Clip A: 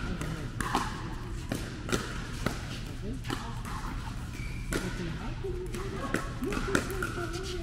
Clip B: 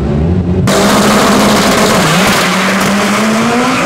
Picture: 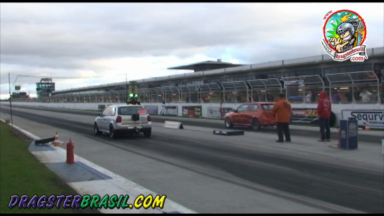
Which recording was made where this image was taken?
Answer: B